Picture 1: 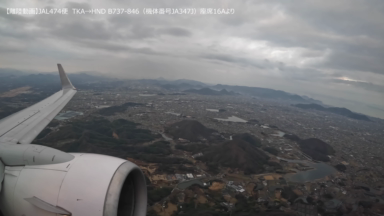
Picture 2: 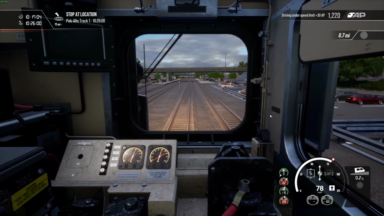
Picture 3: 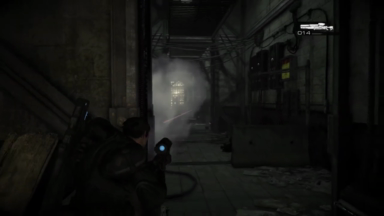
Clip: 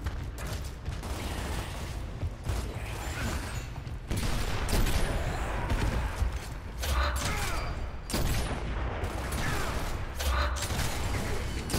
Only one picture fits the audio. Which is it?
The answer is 3